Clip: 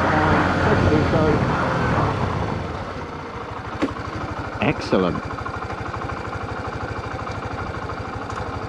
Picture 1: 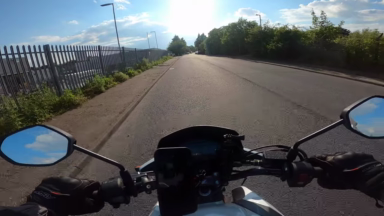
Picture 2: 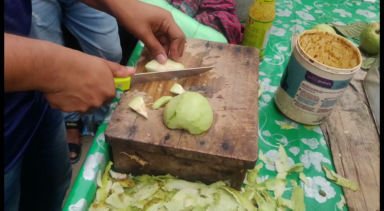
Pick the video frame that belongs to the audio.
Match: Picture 1